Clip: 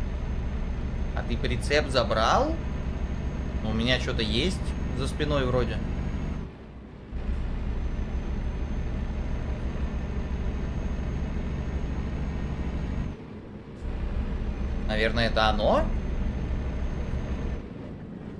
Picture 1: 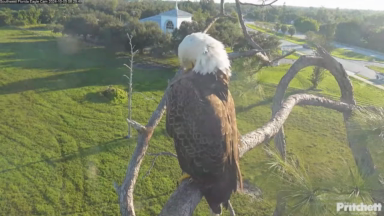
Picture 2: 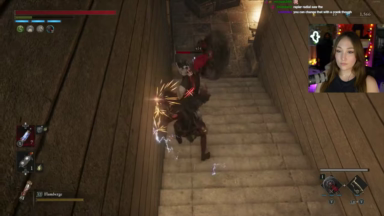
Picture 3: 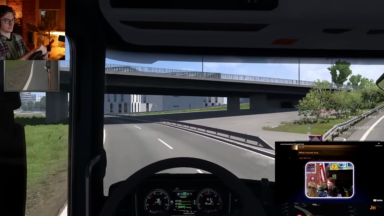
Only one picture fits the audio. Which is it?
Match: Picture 3